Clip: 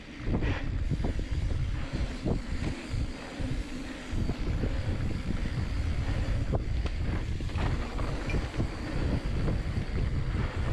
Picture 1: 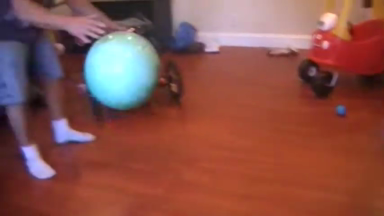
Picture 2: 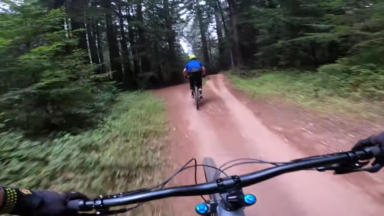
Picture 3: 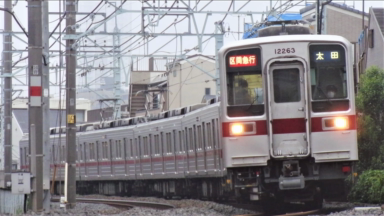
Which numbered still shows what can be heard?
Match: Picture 2